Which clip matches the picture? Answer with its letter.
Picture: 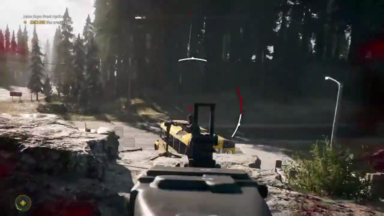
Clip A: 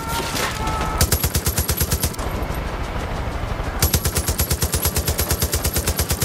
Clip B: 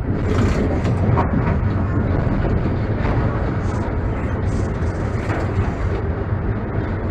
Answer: A